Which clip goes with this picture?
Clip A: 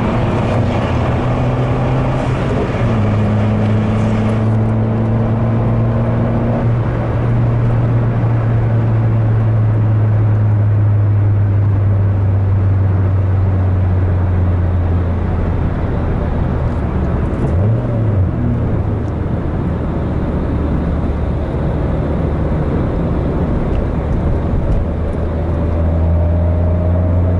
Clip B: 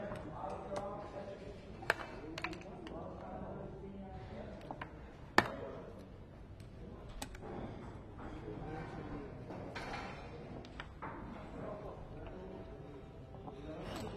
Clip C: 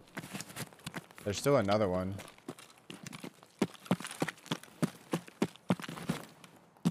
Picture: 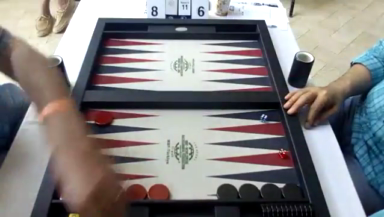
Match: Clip B